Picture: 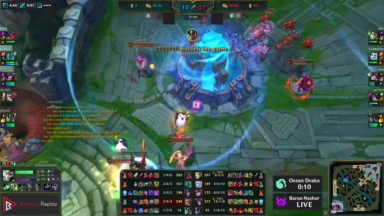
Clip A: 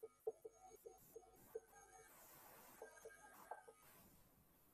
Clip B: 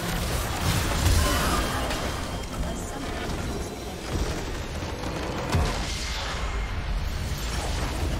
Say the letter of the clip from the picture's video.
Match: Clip B